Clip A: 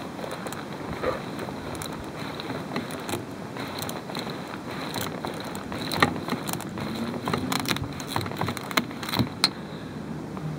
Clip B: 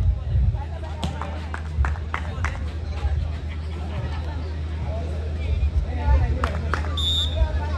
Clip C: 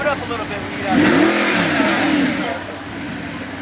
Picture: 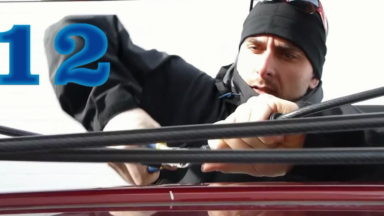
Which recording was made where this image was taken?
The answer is A